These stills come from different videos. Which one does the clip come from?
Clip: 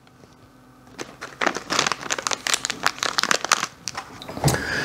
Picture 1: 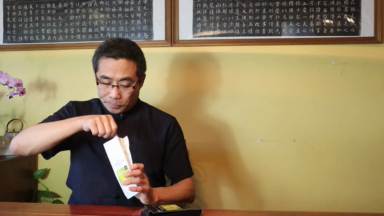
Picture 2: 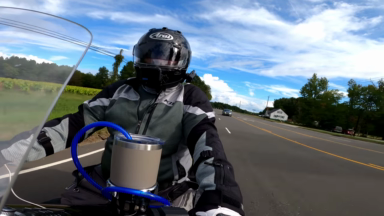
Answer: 1